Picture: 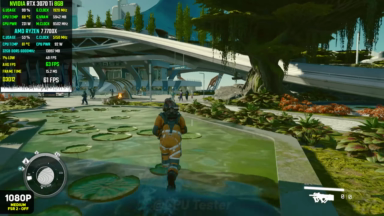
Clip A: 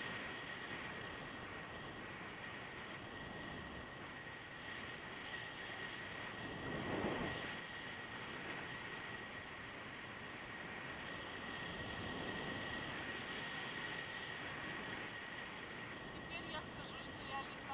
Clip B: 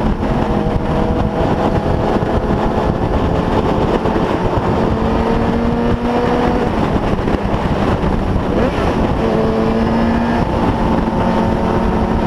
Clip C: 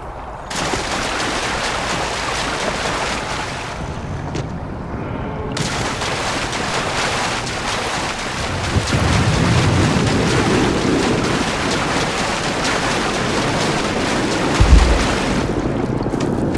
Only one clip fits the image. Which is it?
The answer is C